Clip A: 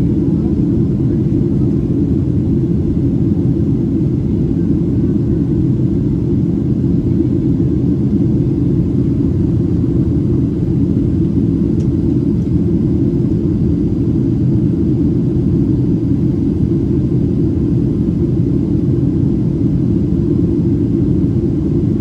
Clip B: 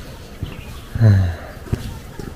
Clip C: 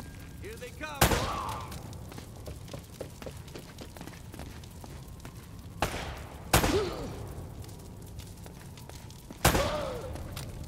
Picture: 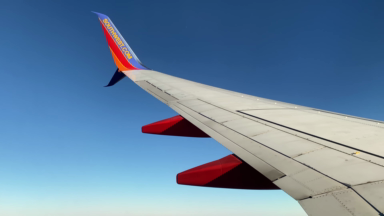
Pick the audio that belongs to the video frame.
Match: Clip A